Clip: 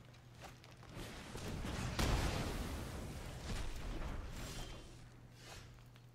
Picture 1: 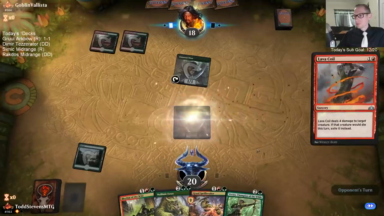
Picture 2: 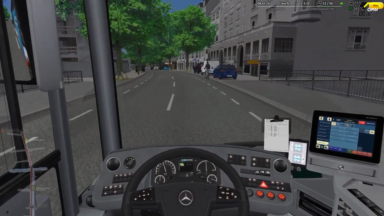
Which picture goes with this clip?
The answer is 1